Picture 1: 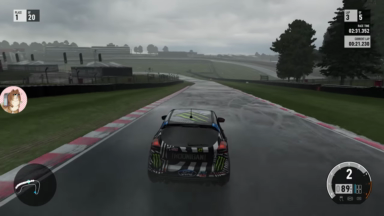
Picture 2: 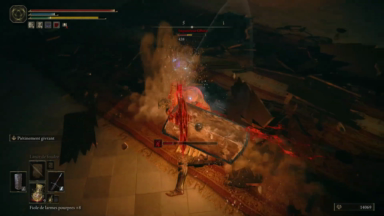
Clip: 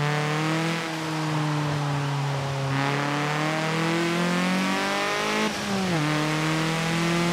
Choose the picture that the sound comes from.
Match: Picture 1